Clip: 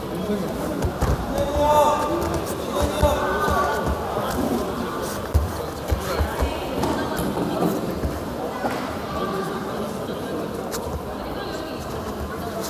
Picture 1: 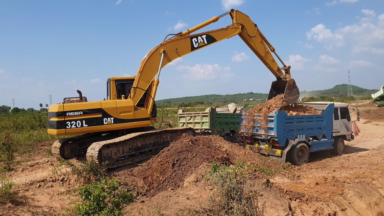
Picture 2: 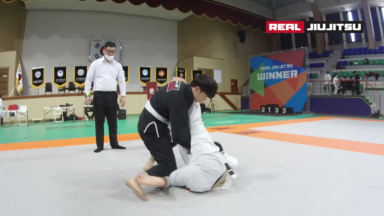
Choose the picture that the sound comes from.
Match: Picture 2